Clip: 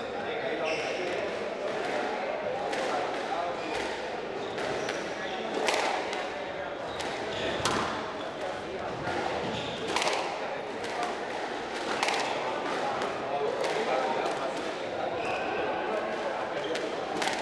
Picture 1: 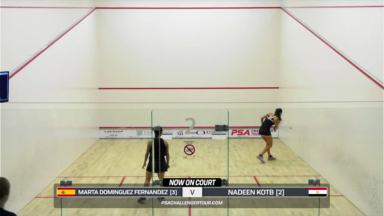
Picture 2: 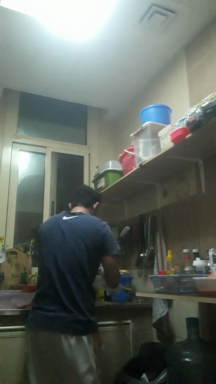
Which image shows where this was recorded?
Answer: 1